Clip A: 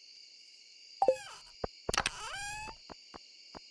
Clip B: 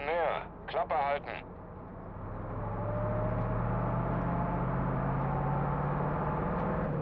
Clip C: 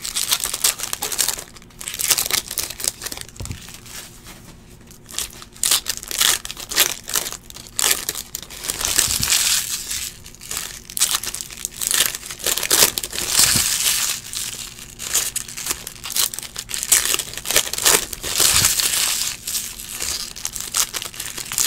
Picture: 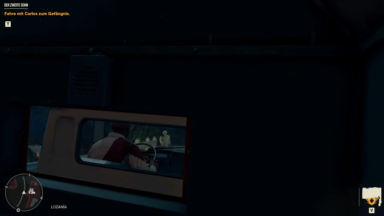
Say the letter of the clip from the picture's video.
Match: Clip B